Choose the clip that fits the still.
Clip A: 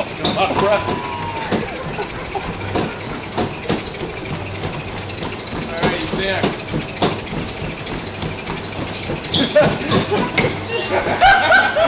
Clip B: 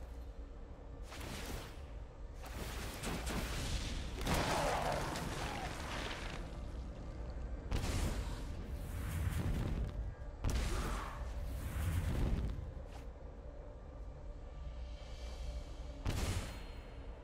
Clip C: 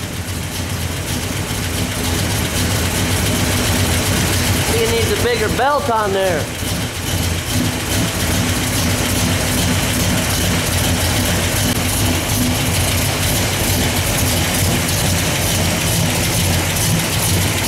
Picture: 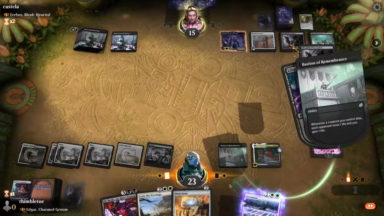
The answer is B